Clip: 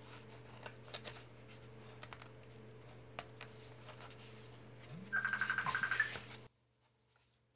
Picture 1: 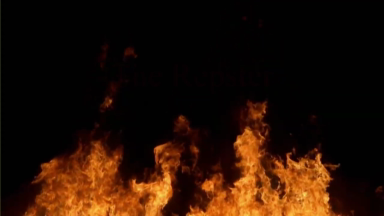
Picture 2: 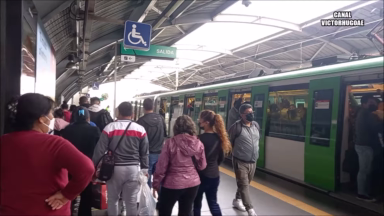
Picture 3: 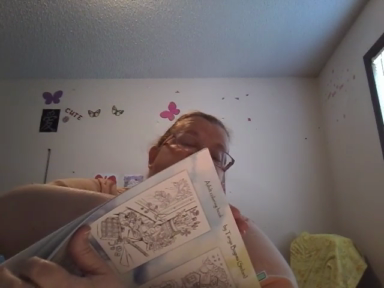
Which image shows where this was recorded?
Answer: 3